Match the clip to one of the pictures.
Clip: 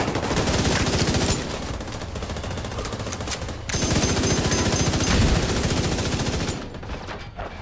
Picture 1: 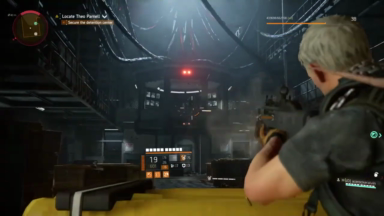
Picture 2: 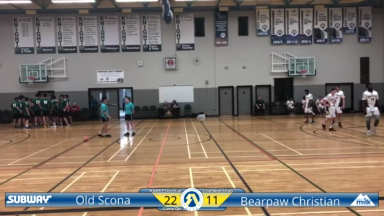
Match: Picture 1